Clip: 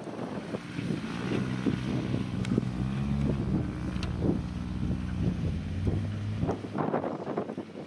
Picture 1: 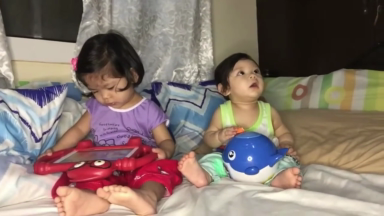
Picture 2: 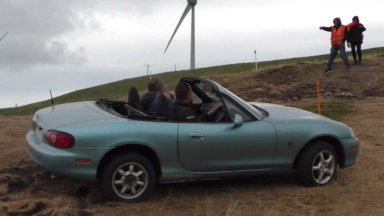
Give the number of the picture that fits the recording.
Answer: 2